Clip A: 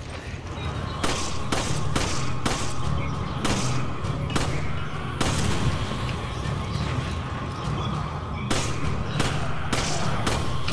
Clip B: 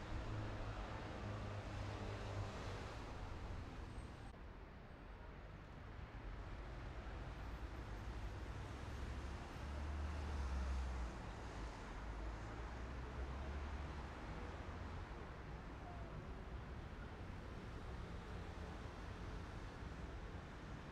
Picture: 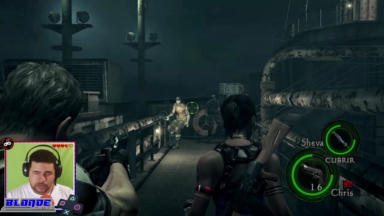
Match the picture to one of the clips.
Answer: A